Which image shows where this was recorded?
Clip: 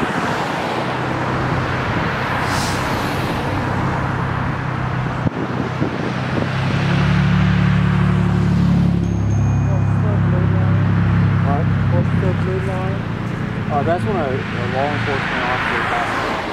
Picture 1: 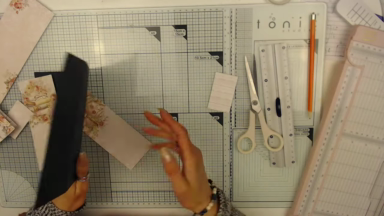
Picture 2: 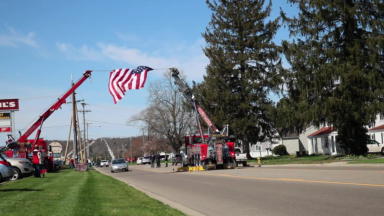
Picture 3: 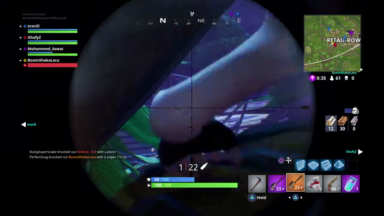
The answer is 2